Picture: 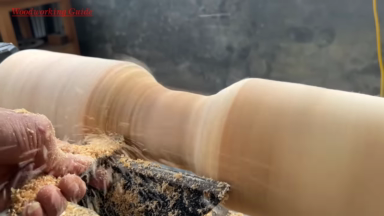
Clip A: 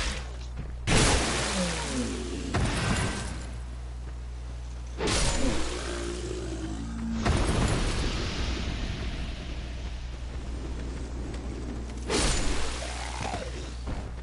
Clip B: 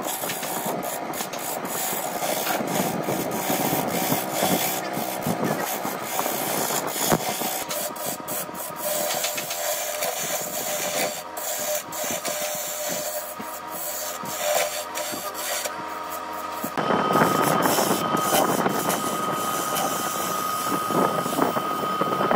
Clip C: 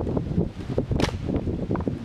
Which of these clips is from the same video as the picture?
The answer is B